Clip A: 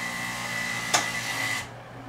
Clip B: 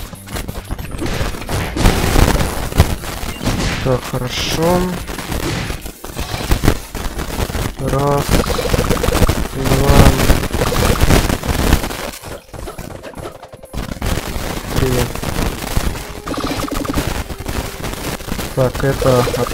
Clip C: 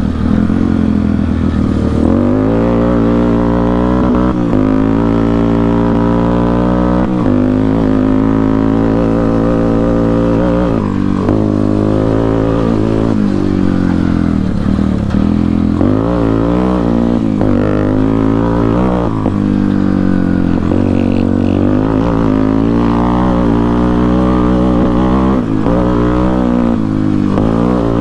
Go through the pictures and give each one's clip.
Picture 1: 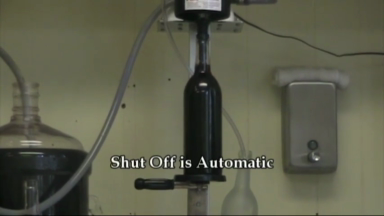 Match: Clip A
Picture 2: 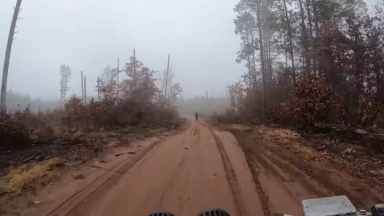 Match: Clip C